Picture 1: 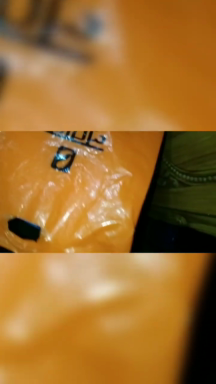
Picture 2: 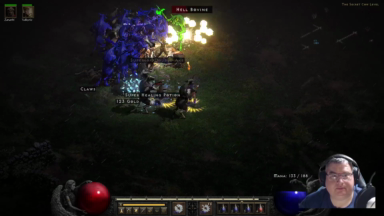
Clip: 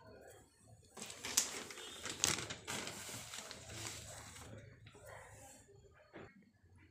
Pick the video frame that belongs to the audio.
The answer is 1